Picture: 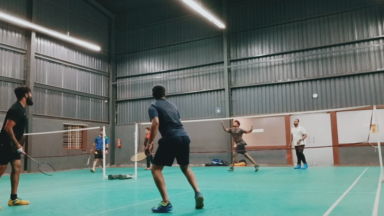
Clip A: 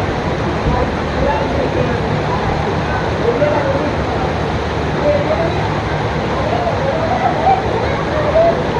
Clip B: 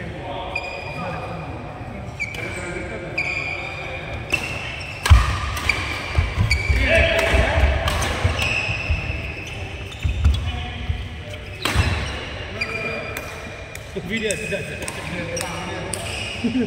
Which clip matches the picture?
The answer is B